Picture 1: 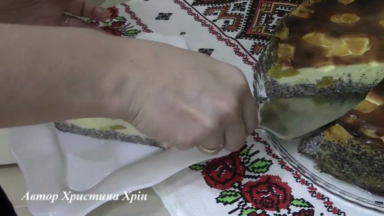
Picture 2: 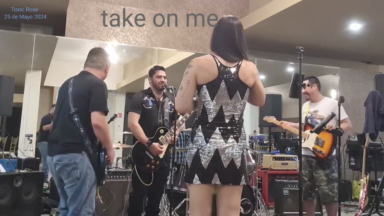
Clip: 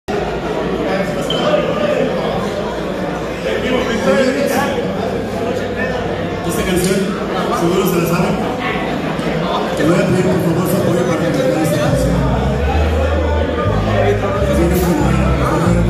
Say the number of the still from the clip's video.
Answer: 2